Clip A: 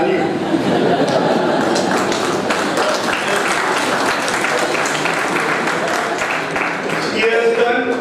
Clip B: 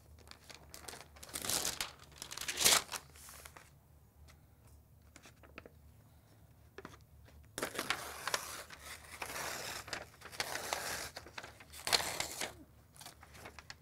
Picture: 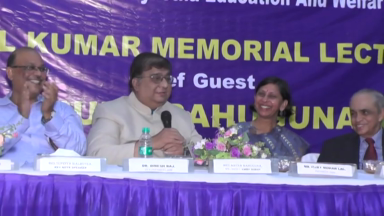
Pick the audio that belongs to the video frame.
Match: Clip A